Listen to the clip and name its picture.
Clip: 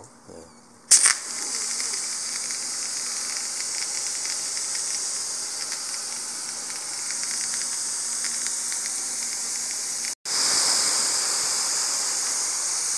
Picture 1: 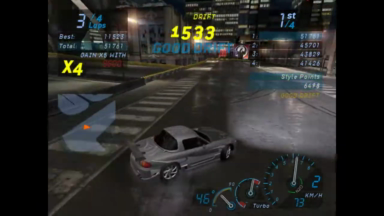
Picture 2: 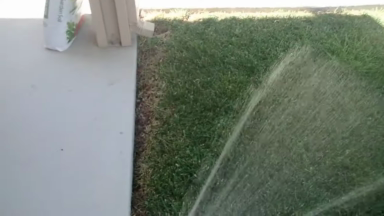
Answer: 2